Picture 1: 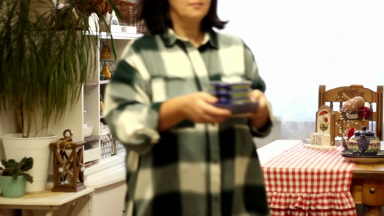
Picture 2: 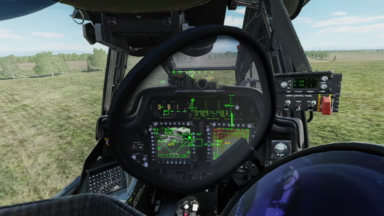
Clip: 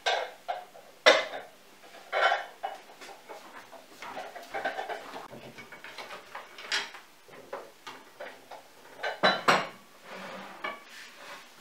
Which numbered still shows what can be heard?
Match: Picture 1